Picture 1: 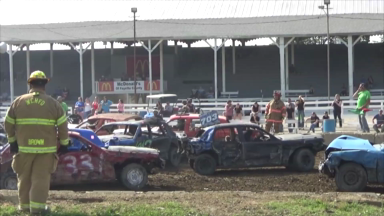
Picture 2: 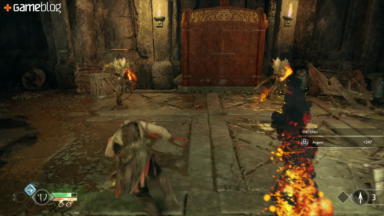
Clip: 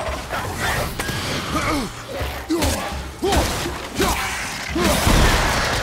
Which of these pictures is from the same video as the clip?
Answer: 2